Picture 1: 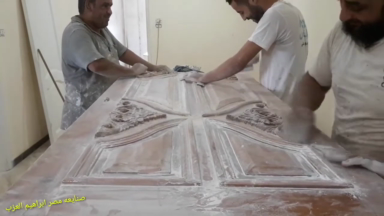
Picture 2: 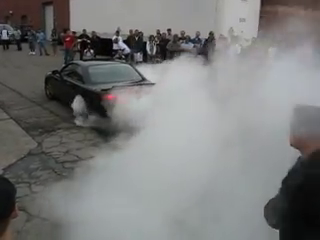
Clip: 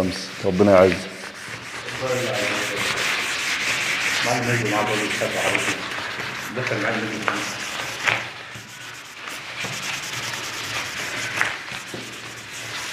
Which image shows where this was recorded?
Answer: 1